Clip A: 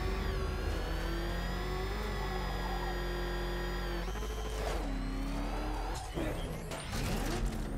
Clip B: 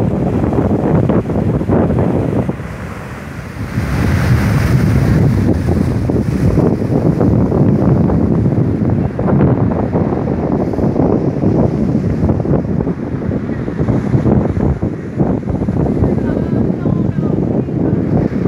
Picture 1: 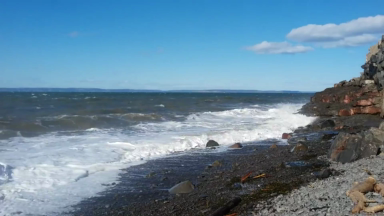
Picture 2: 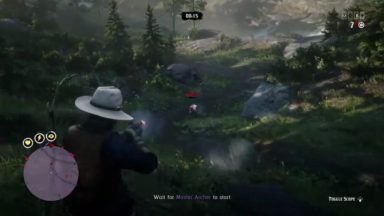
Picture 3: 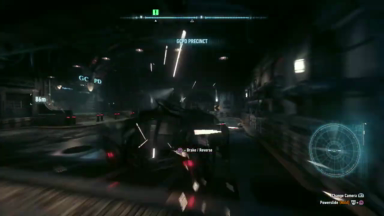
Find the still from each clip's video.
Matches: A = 3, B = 1